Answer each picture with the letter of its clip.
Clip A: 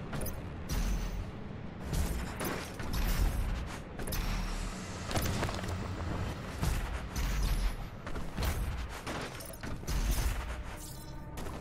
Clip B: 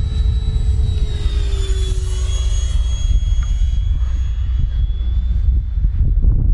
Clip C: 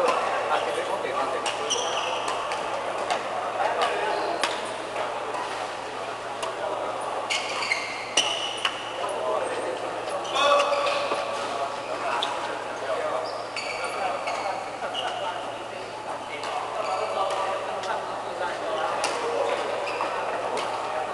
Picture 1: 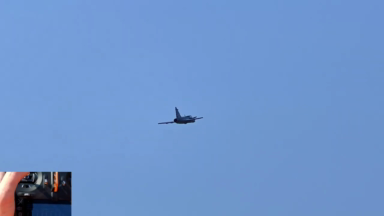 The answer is B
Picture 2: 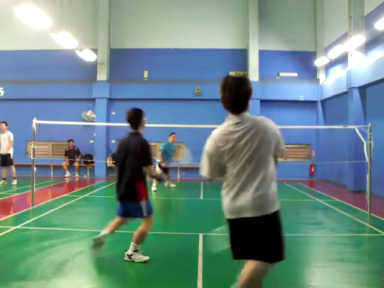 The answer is C